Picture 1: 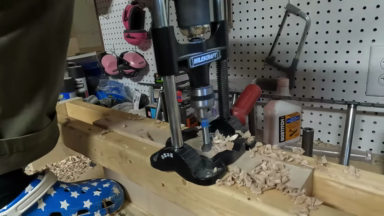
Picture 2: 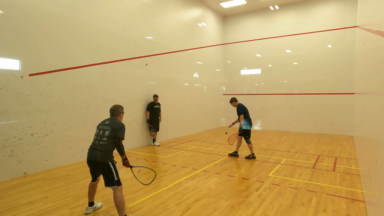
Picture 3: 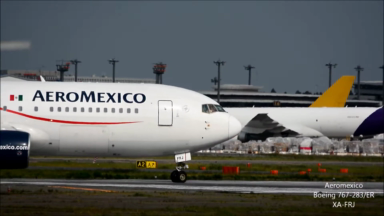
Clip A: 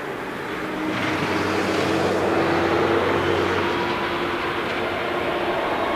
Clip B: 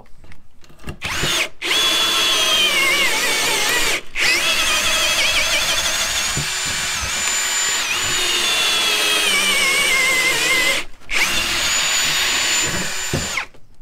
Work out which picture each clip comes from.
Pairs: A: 3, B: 1